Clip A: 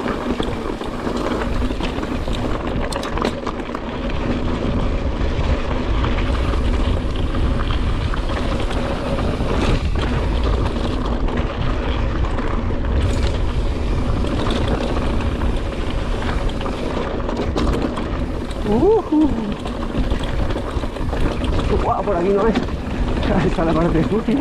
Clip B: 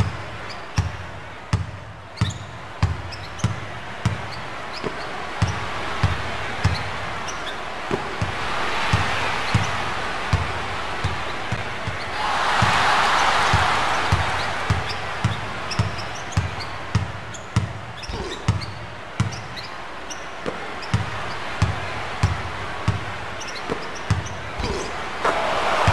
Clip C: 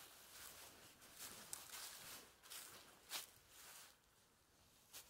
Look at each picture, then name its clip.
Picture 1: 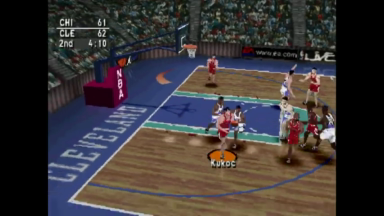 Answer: B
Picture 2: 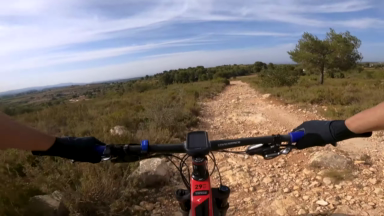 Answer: A